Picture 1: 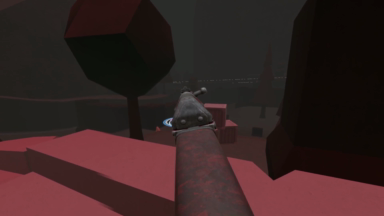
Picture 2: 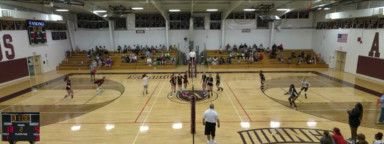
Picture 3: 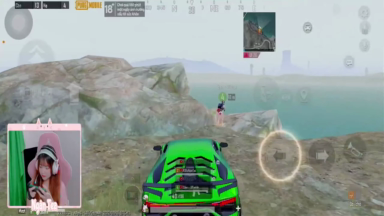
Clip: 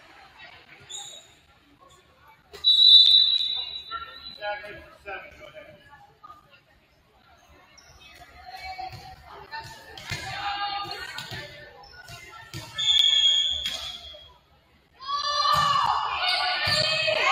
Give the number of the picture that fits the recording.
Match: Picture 2